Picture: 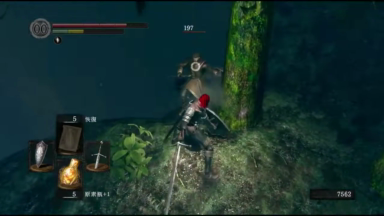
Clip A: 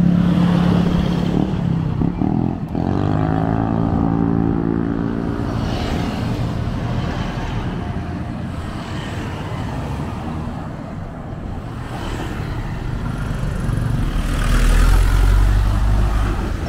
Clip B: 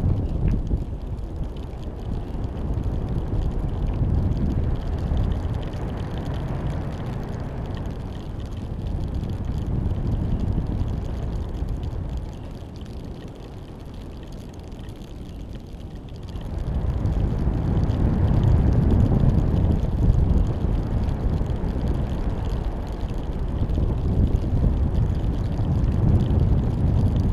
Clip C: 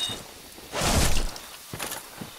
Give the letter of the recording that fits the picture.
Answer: C